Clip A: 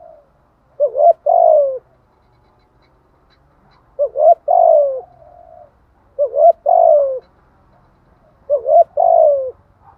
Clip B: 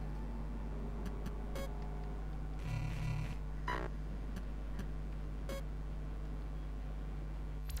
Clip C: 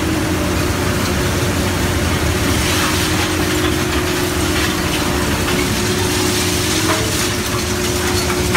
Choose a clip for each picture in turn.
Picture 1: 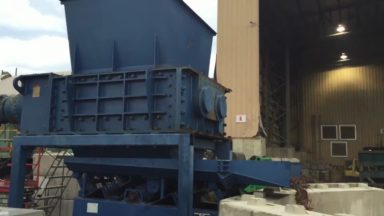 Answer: C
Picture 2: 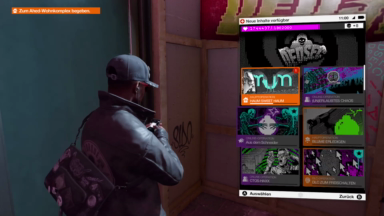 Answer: B